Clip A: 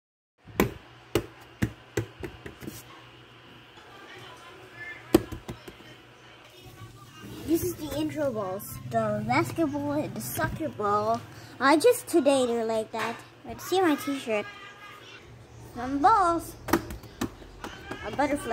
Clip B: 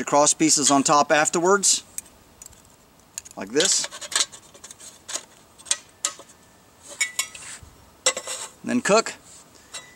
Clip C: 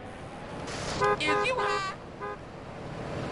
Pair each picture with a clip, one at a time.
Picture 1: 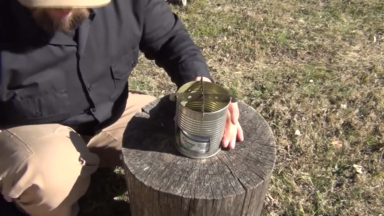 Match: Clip B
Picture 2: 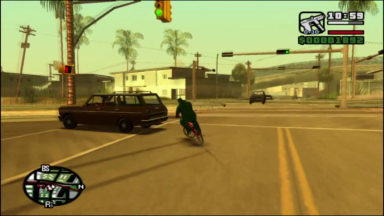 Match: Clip C